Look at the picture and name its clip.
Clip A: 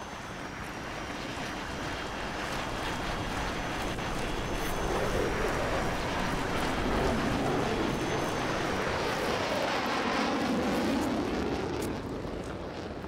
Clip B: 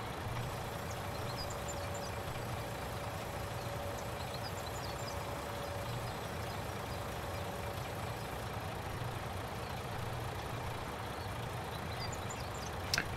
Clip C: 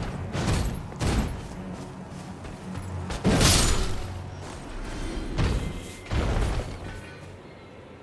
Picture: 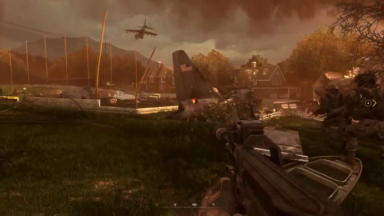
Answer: A